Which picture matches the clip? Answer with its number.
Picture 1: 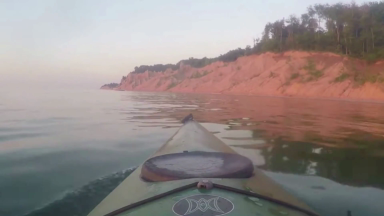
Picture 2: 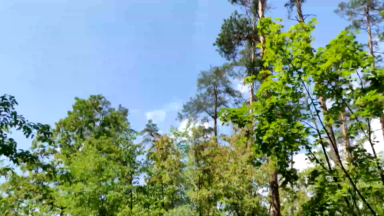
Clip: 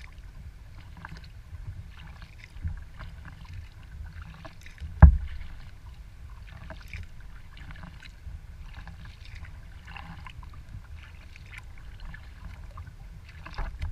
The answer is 1